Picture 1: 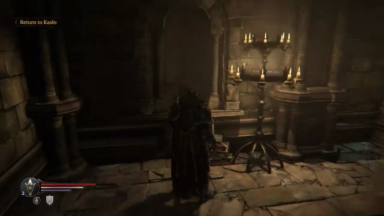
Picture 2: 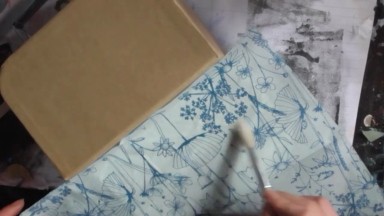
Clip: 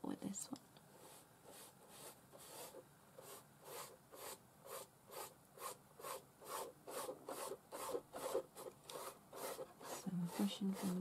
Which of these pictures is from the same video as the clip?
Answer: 2